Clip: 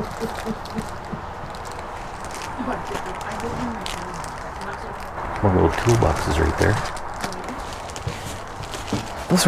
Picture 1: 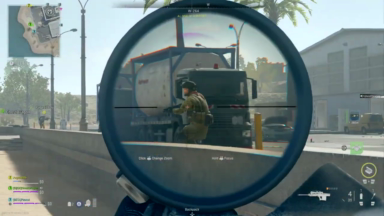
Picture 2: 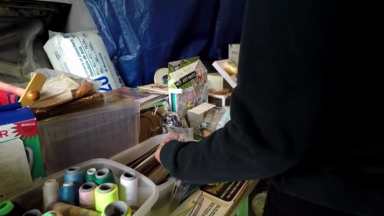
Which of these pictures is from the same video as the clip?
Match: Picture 2